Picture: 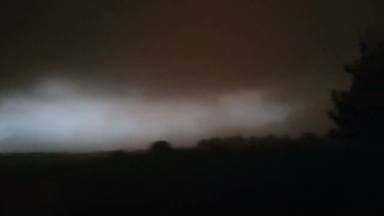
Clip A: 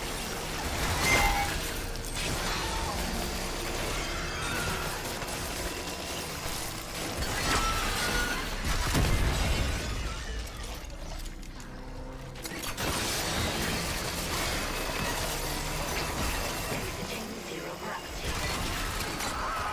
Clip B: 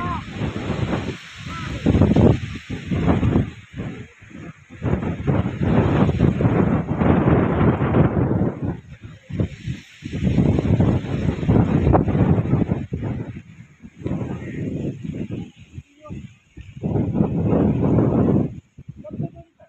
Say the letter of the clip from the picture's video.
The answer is B